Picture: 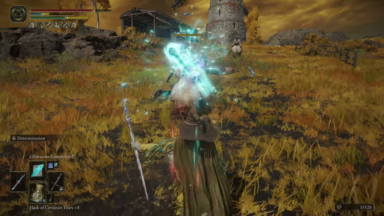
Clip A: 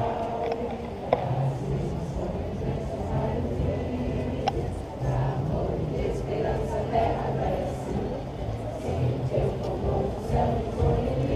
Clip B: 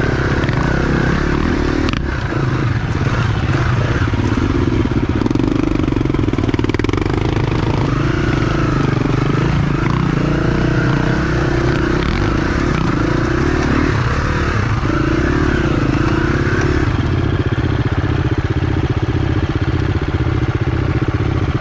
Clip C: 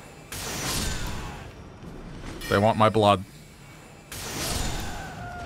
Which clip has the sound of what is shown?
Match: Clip C